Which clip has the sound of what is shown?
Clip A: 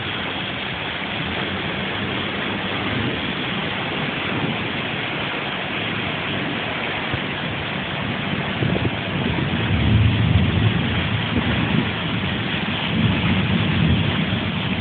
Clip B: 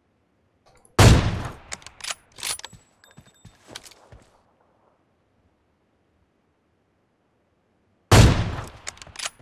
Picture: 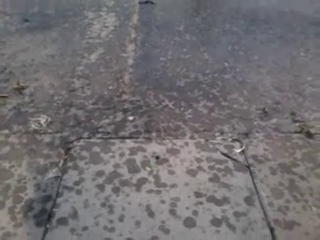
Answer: A